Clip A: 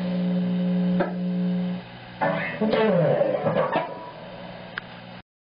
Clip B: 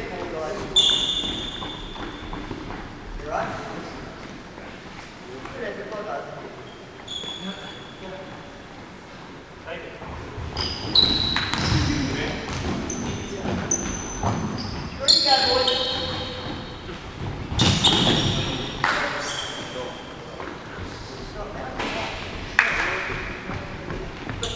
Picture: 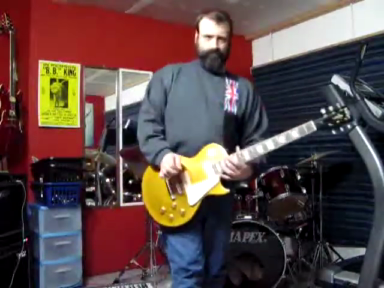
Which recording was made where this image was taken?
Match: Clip A